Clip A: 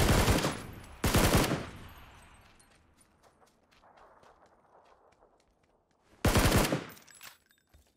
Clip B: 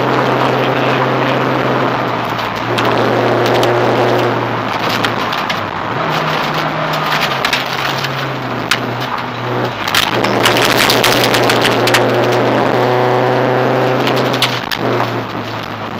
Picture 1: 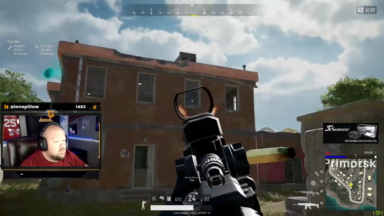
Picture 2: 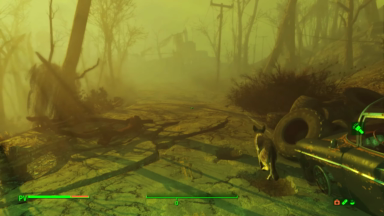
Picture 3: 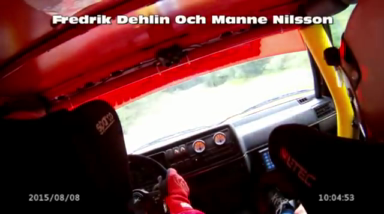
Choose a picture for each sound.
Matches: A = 1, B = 3